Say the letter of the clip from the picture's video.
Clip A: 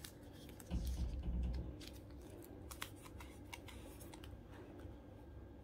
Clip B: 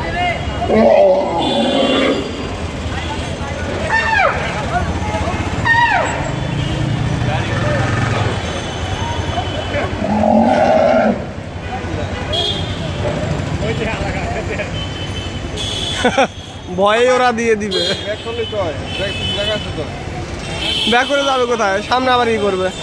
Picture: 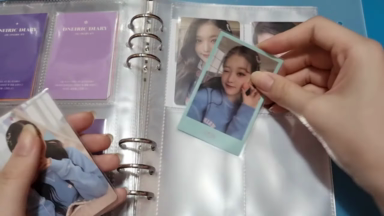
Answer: A